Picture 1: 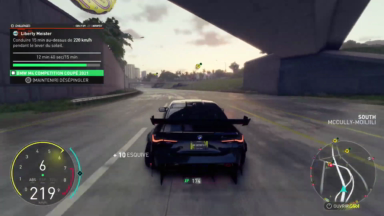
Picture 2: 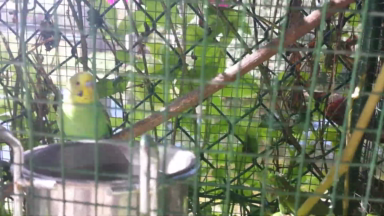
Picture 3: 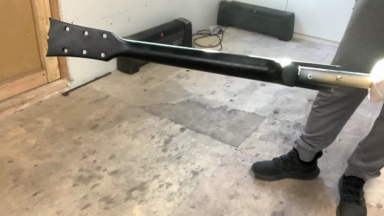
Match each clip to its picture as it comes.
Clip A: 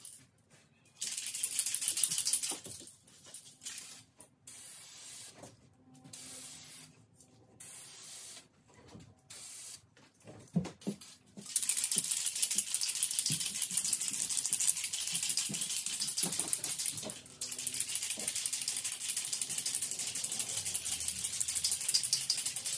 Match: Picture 3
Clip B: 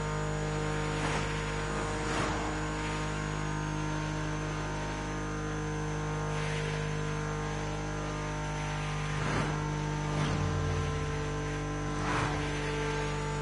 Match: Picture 1